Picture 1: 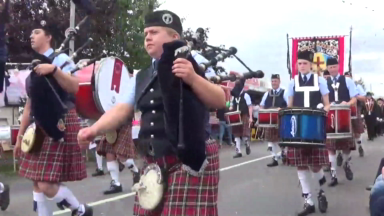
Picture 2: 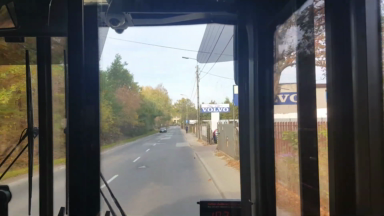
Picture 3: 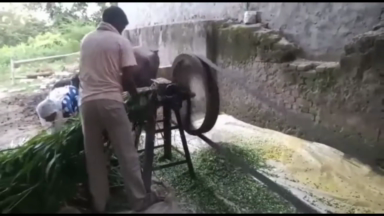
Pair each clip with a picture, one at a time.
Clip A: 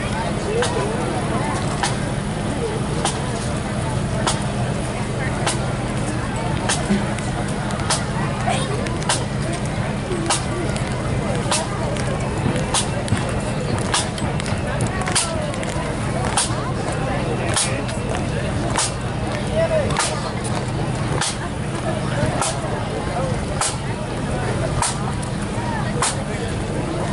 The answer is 1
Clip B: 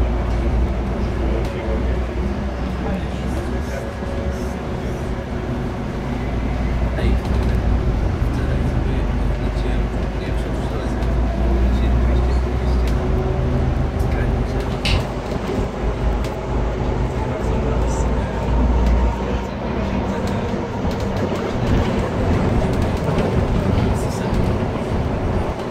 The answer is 2